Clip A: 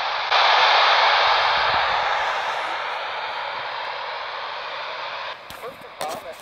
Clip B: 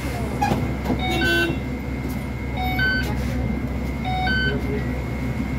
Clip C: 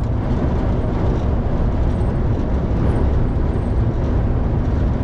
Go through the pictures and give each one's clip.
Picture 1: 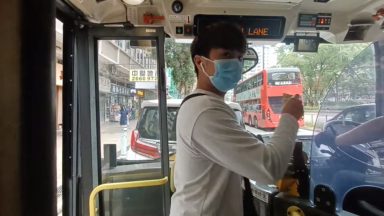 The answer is B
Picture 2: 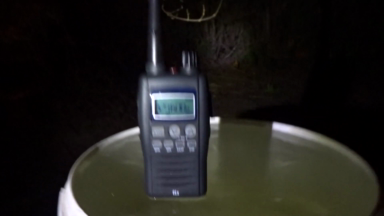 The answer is A